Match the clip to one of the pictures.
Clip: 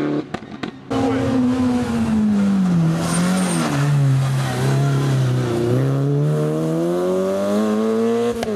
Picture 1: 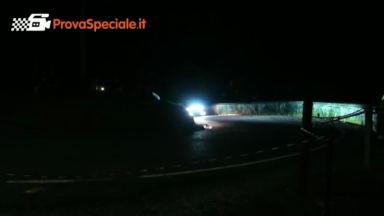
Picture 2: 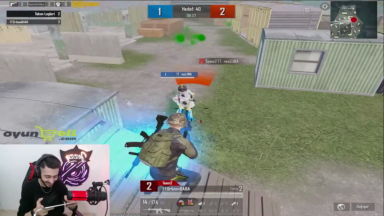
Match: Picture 1